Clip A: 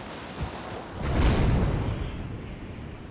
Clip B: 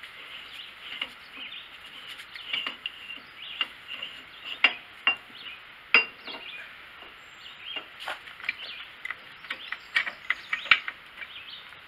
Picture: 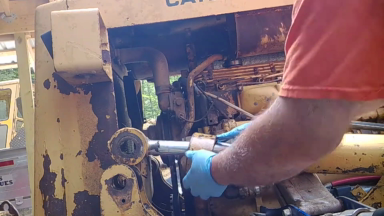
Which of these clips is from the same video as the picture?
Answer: B